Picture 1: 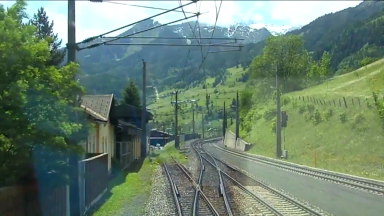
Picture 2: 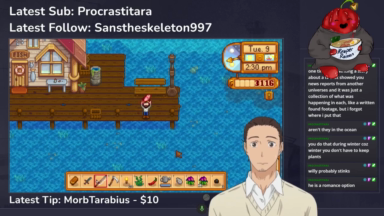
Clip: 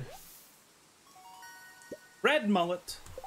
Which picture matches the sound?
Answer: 2